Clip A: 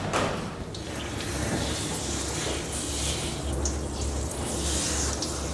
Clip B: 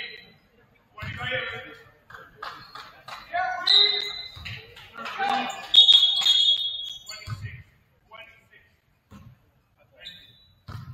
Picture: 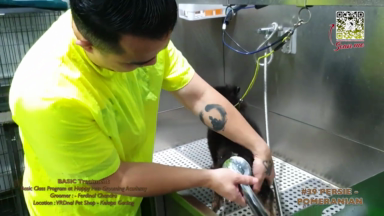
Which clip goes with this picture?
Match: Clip A